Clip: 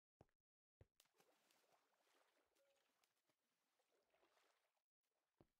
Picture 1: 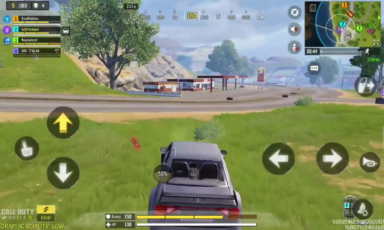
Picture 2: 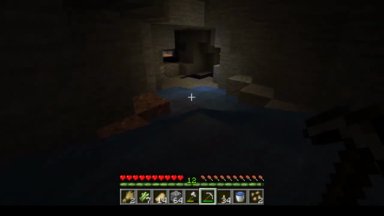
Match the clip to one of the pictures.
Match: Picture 2